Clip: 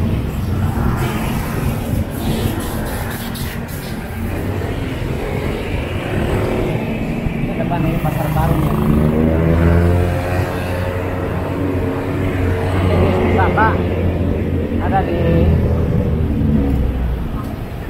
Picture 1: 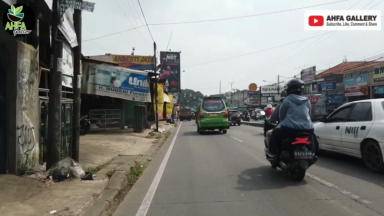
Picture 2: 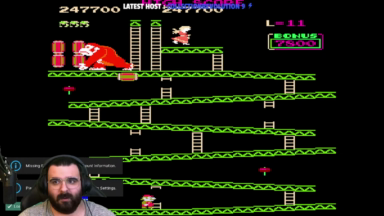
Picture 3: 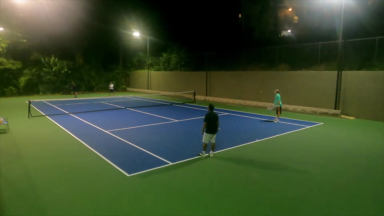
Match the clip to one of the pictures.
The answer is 1